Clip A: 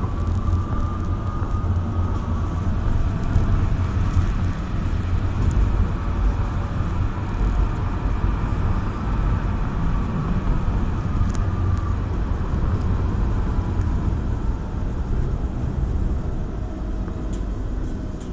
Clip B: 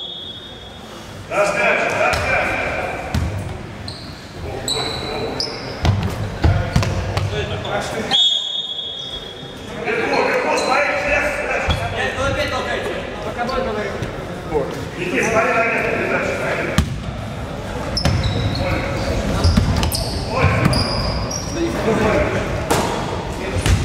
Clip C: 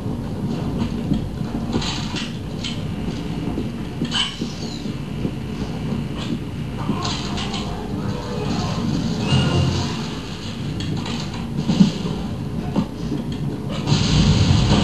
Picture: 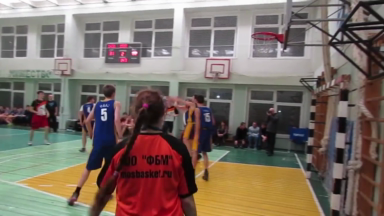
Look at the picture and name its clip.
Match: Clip B